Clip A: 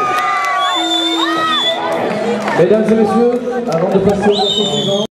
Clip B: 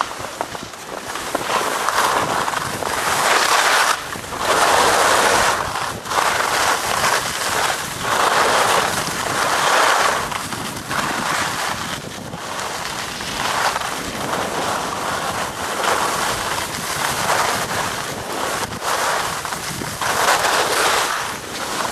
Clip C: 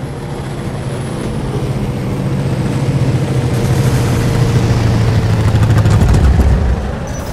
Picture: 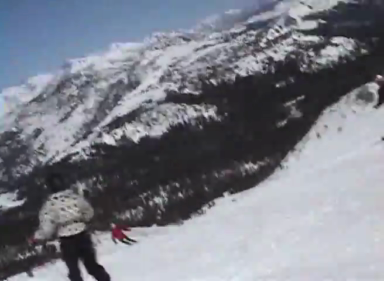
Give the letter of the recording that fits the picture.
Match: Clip B